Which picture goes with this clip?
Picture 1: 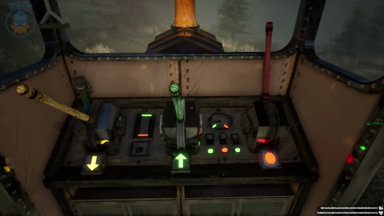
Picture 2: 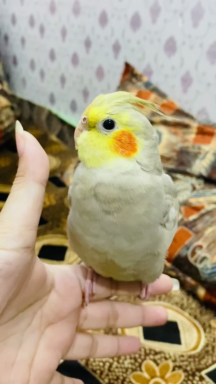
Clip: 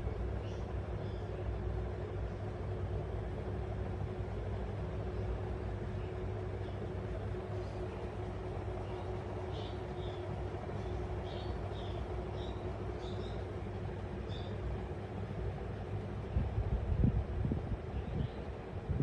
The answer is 2